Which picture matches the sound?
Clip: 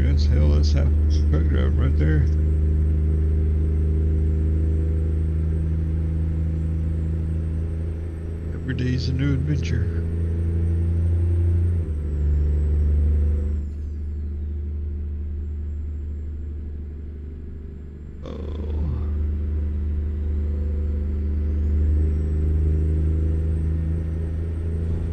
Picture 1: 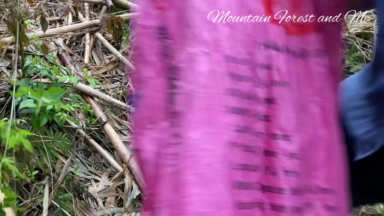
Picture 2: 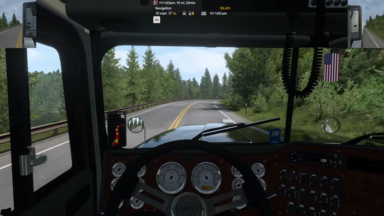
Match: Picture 2